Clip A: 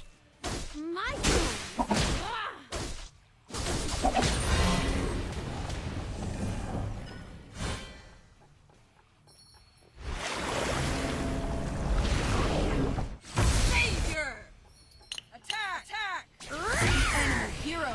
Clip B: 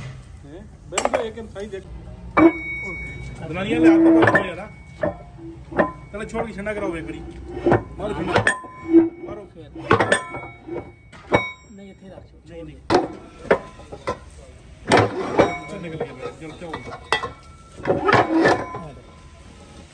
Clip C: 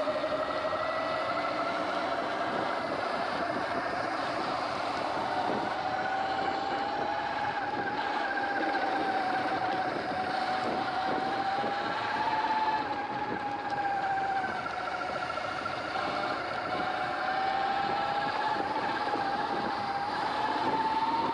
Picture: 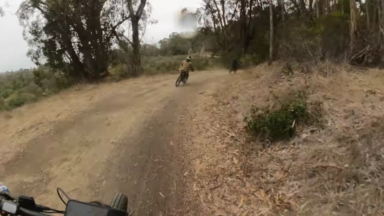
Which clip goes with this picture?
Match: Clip C